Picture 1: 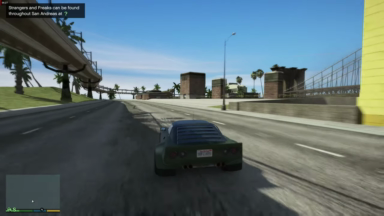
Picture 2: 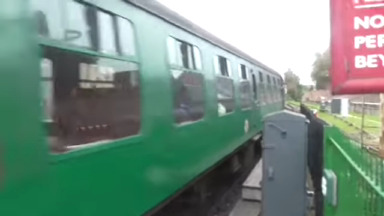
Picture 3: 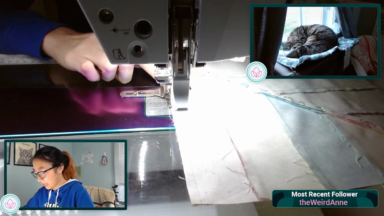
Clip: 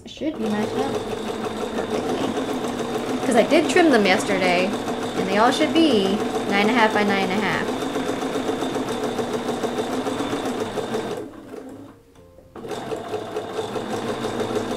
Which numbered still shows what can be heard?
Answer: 3